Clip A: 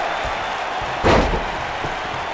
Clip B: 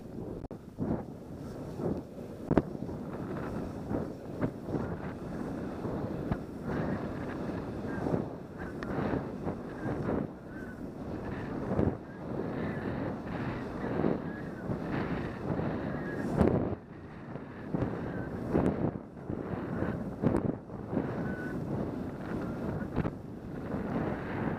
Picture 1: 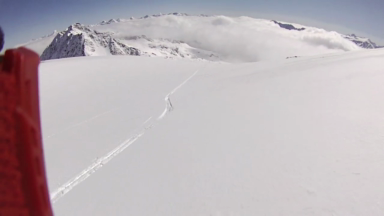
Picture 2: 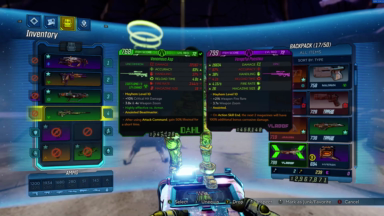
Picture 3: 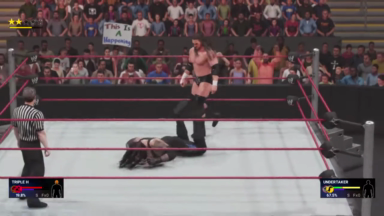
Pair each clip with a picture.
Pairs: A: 3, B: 1